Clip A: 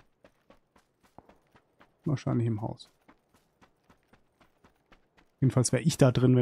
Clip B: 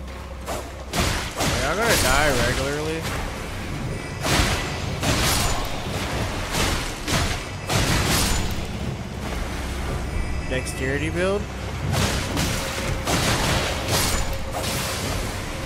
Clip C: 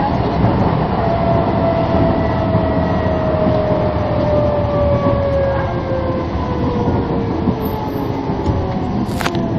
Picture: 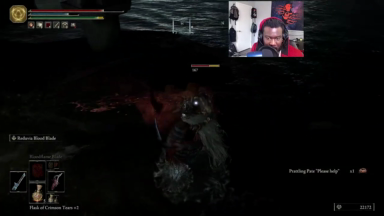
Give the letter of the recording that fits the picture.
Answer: B